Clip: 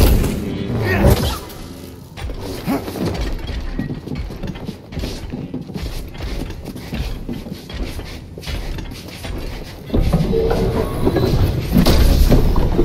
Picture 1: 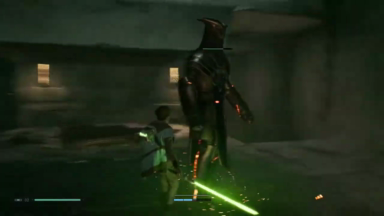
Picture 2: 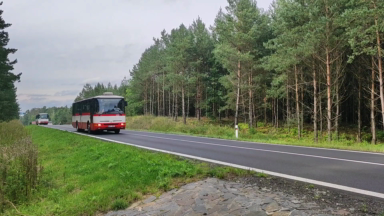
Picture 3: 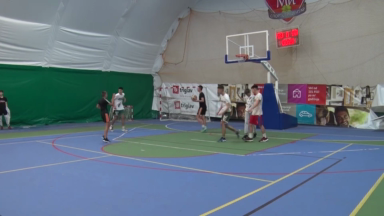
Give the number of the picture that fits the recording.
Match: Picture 1